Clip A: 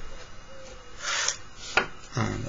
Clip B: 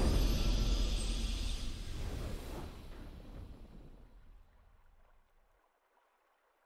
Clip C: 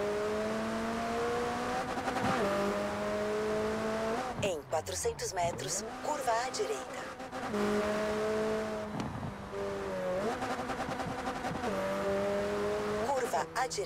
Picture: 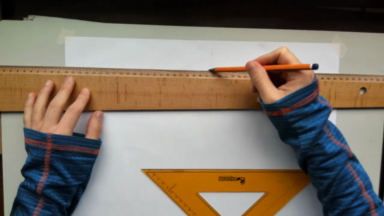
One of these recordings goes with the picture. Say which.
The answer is A